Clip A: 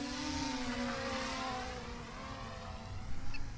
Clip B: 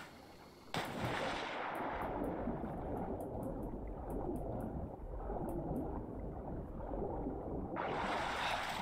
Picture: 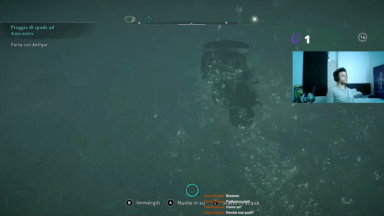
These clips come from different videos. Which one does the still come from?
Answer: B